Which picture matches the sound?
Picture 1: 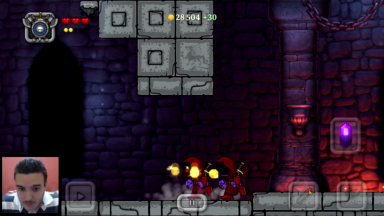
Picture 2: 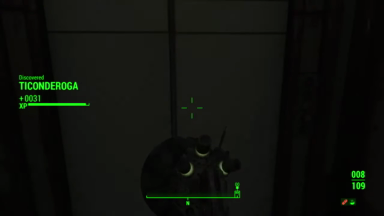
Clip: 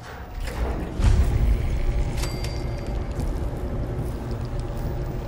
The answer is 2